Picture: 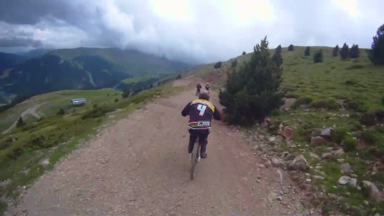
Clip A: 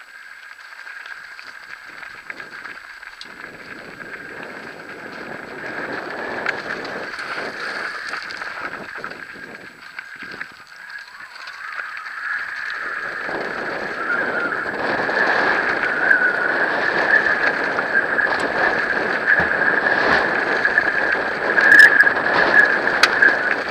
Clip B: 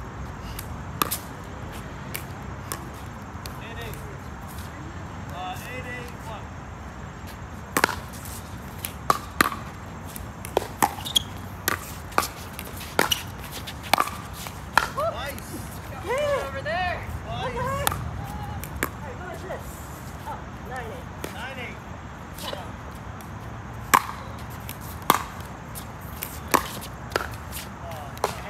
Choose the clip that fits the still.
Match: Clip A